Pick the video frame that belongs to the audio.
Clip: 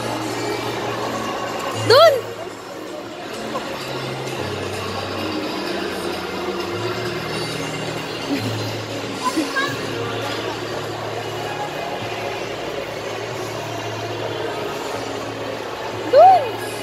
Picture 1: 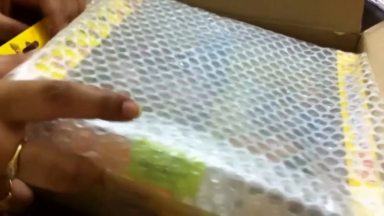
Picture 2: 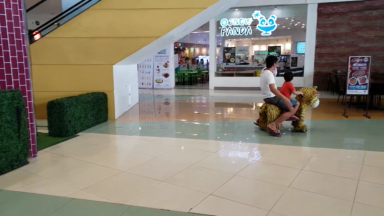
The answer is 2